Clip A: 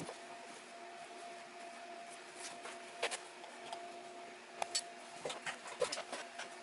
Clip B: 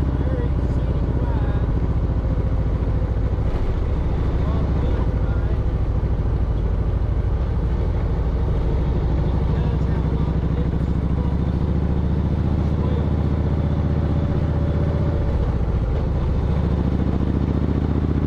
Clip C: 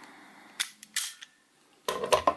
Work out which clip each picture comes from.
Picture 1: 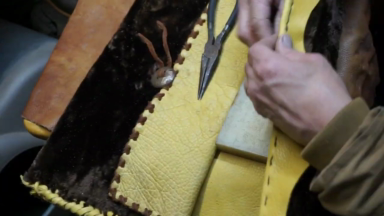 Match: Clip A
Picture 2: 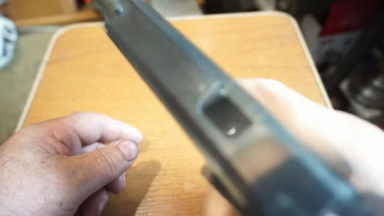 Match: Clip C